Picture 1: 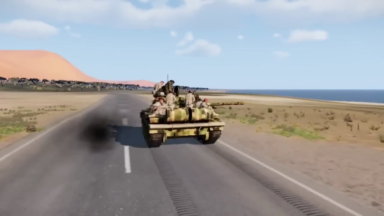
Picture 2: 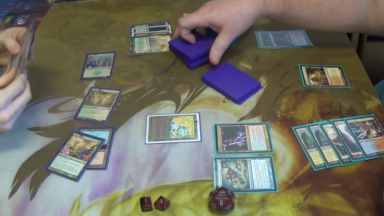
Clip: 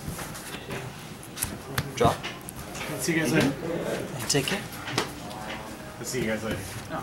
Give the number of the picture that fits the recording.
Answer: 2